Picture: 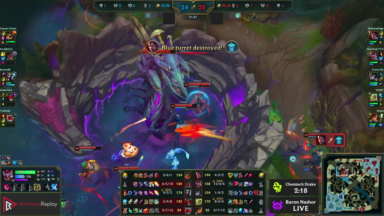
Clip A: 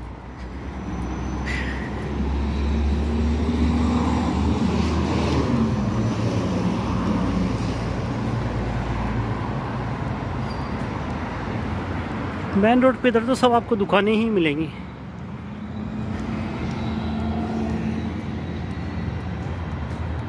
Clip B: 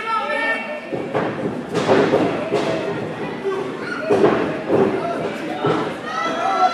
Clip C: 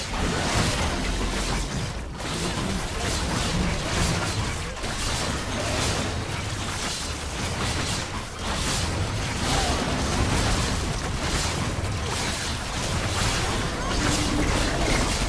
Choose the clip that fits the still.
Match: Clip C